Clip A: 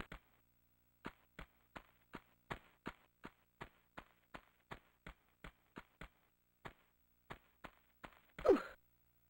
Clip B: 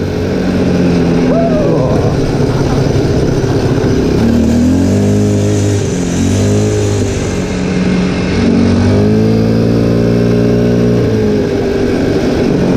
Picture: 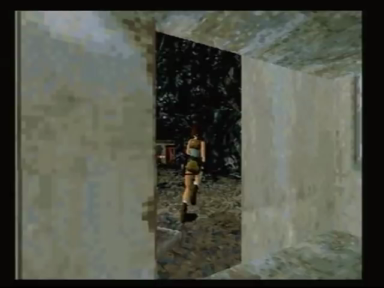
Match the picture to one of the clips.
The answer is A